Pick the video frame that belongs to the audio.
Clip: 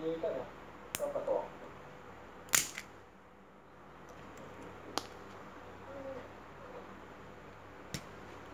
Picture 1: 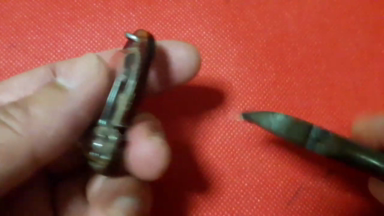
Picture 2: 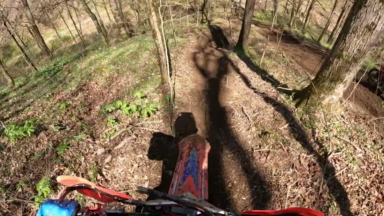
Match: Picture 1